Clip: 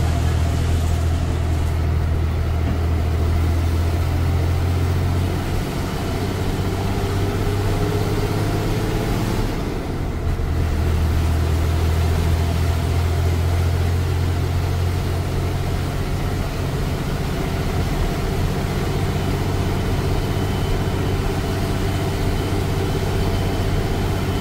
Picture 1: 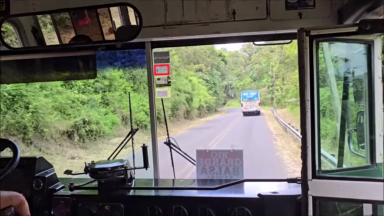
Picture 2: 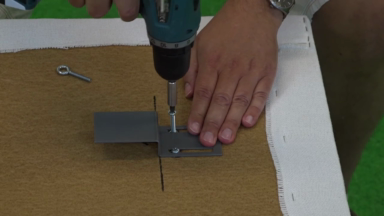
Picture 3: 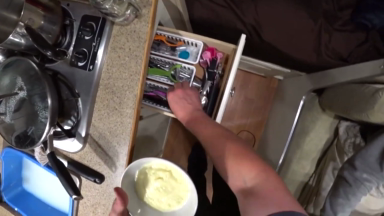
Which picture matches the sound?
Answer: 1